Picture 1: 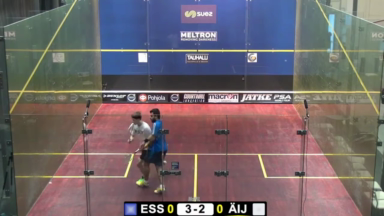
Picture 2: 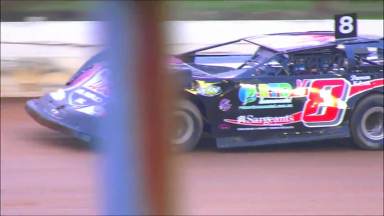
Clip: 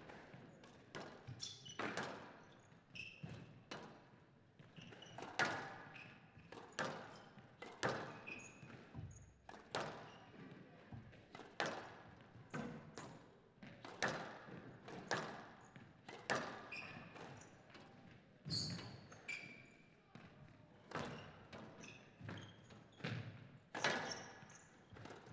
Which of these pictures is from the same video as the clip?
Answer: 1